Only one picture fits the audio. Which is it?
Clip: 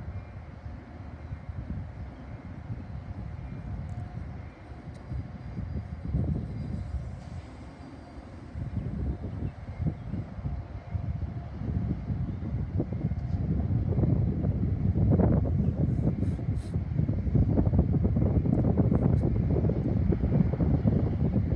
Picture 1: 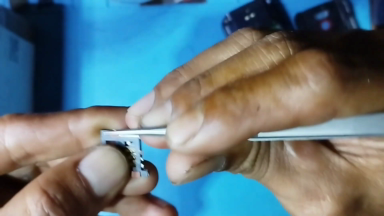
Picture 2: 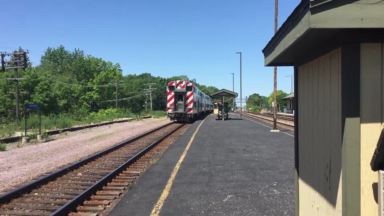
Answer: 2